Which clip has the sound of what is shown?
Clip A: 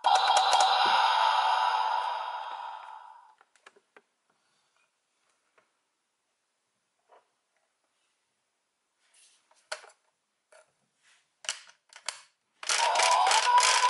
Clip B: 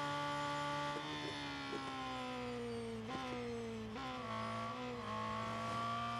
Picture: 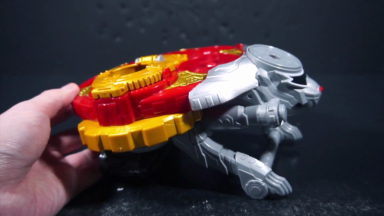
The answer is A